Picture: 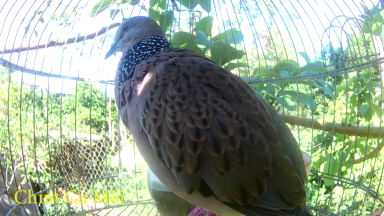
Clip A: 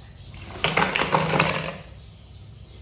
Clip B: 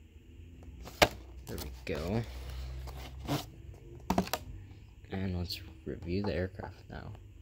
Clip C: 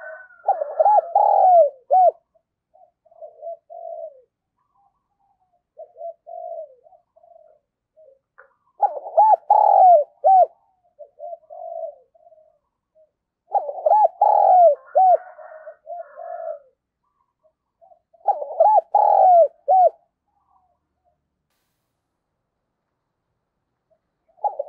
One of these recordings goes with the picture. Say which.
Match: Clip C